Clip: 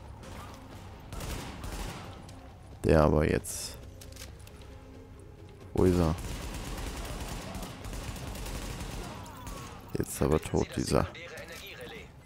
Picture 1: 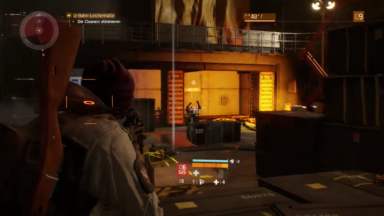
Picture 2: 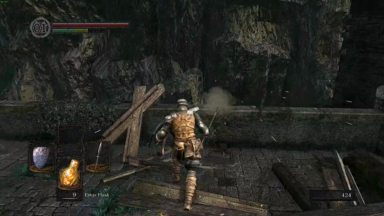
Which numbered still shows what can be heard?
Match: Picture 1